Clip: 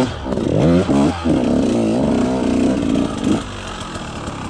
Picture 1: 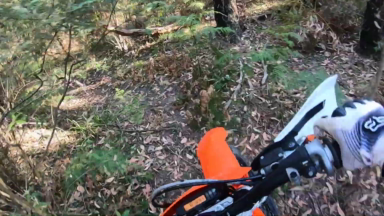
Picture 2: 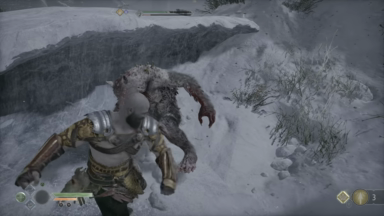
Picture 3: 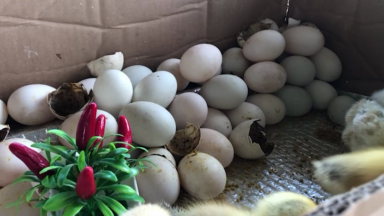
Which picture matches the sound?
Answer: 1